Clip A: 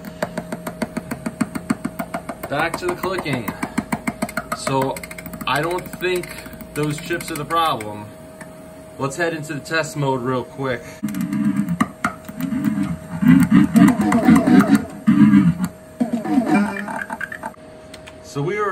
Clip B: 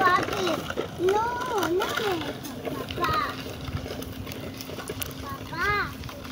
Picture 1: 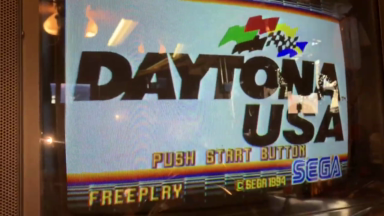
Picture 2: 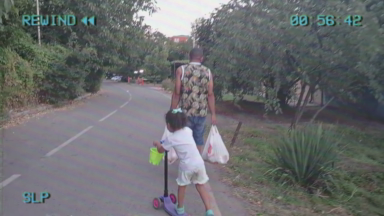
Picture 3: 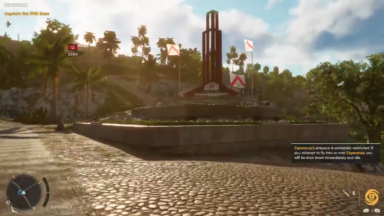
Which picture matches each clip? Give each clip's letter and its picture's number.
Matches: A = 1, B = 2